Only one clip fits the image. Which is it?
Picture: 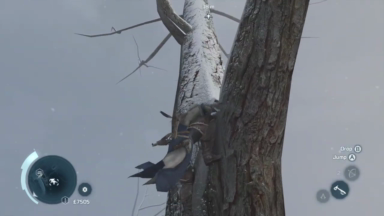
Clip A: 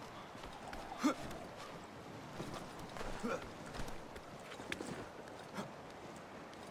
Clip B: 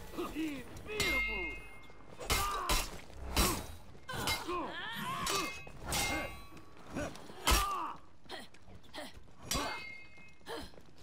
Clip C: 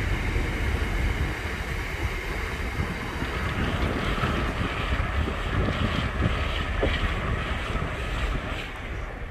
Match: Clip A